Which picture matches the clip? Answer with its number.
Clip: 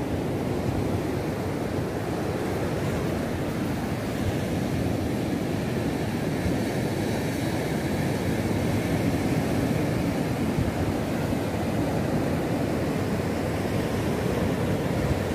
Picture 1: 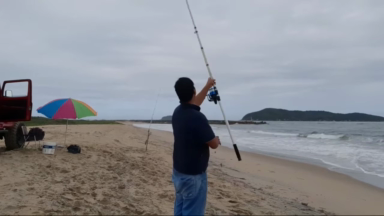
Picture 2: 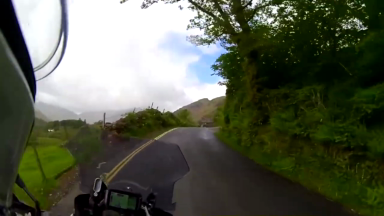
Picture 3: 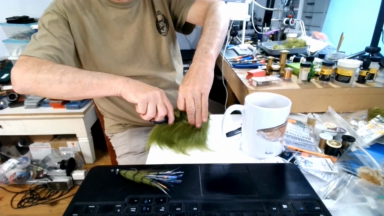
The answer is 1